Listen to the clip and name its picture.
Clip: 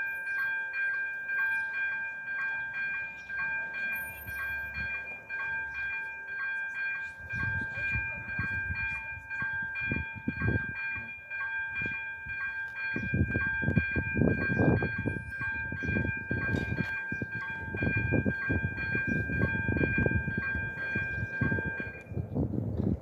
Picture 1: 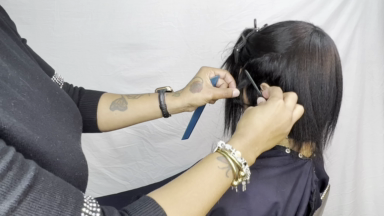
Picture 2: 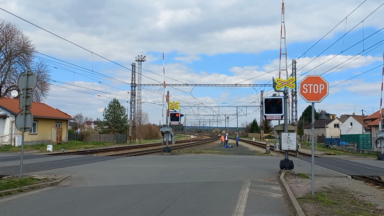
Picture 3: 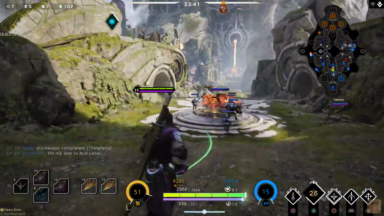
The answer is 2